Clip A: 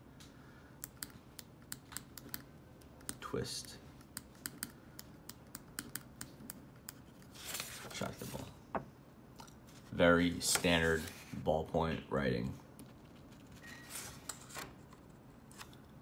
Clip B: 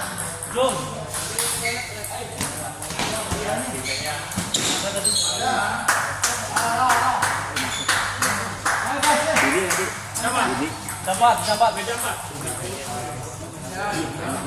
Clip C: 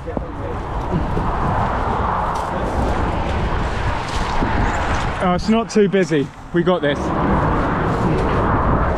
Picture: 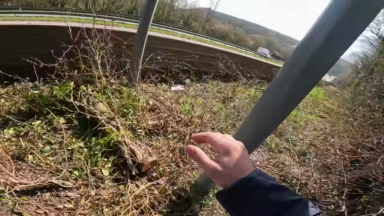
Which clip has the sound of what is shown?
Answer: C